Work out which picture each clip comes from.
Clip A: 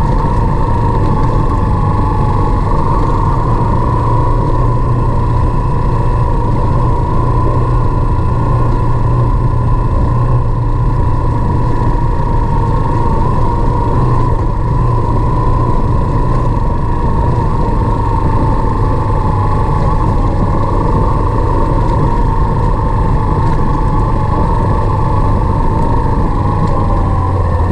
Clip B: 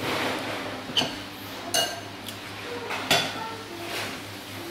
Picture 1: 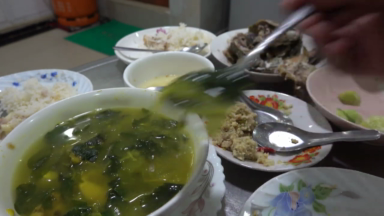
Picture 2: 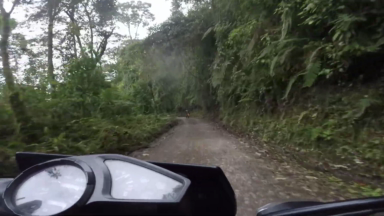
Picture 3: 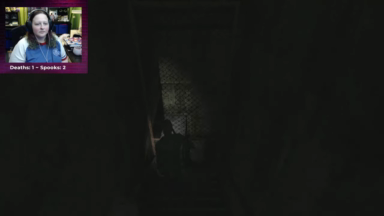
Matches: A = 2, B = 1